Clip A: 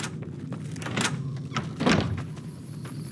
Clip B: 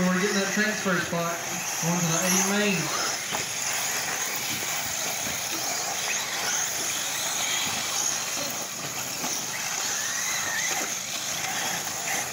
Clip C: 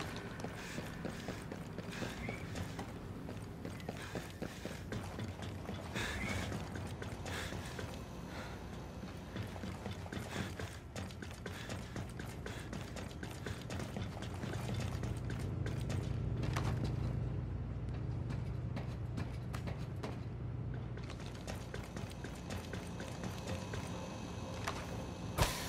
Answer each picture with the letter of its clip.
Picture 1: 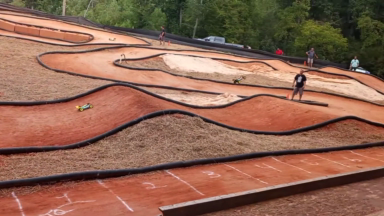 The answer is B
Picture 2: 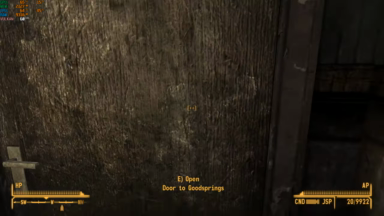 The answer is A